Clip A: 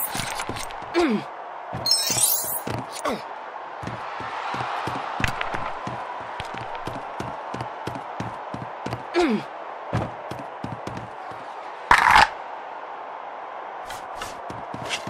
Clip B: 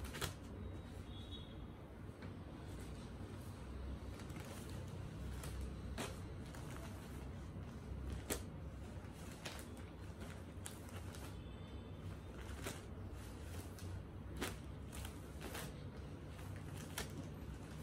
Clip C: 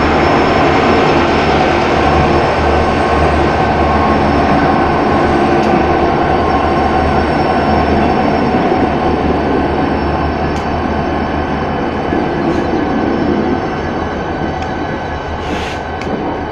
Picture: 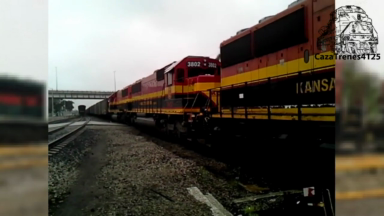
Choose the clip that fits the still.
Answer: C